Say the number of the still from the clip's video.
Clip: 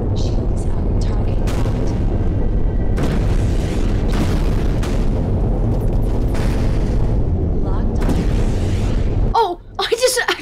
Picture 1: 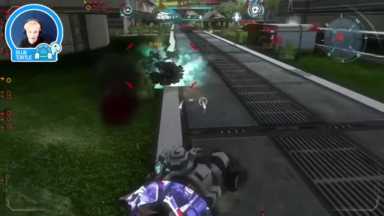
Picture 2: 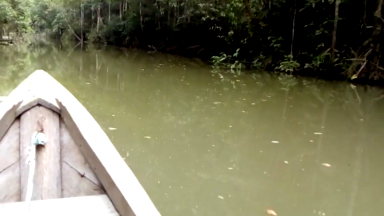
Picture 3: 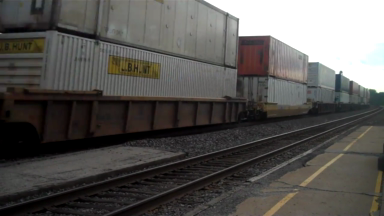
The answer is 1